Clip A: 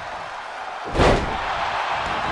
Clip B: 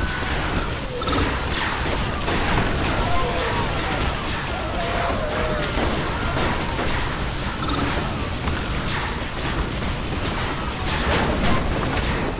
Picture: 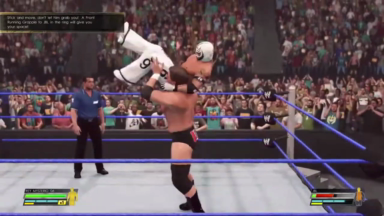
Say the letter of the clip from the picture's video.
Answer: A